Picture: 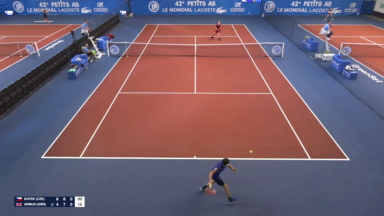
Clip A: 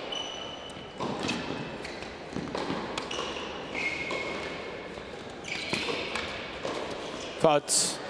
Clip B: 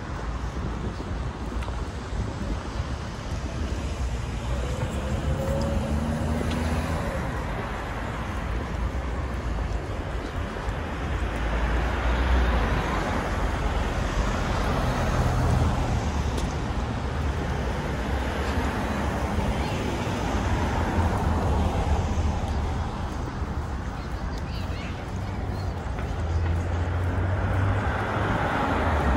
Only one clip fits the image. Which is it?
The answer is A